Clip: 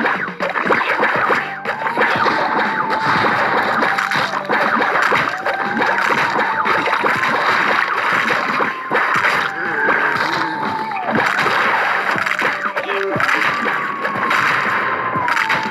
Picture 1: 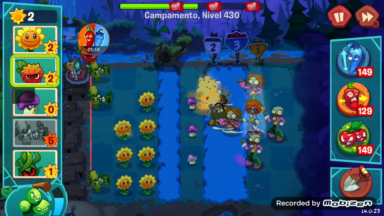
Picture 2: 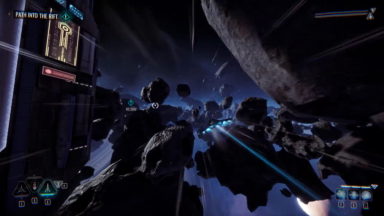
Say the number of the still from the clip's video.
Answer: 1